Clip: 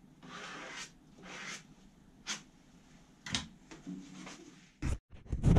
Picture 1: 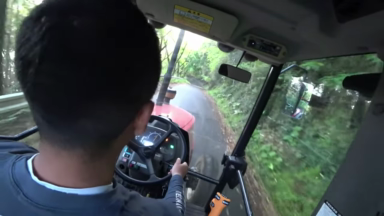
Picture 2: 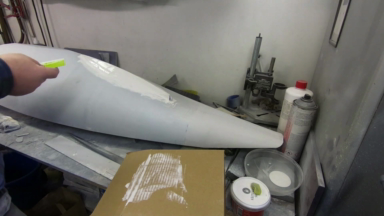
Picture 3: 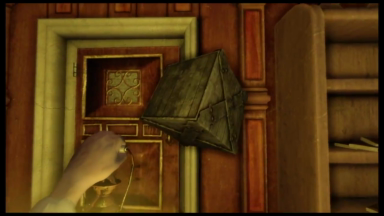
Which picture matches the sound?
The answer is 2